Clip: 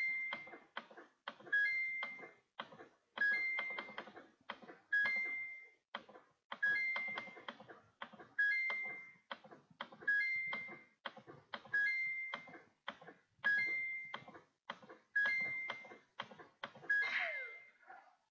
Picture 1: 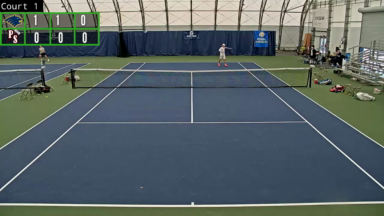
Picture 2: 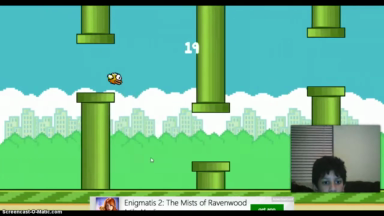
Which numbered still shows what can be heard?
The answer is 2